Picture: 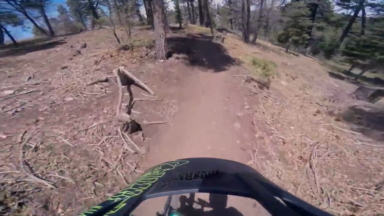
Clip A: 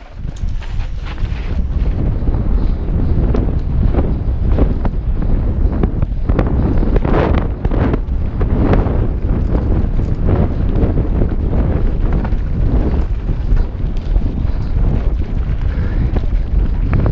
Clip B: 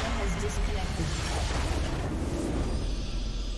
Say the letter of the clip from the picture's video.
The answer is A